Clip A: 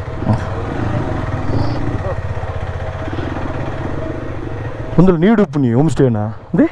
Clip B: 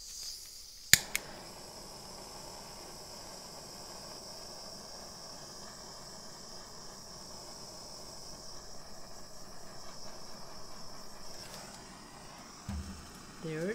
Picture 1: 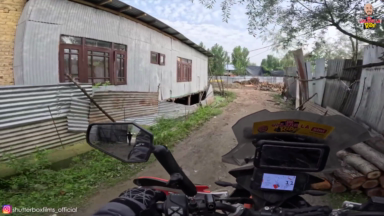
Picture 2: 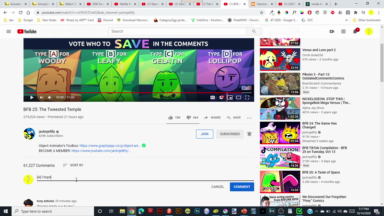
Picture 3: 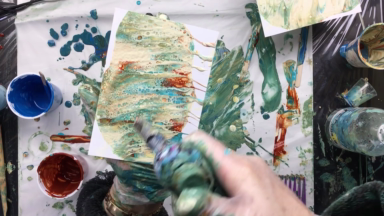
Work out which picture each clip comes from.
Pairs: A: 1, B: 3